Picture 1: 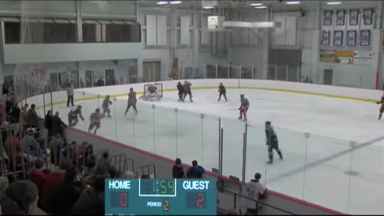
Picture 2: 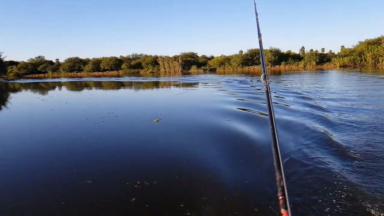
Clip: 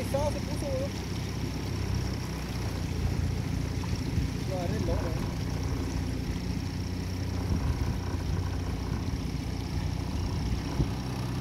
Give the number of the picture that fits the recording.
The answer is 2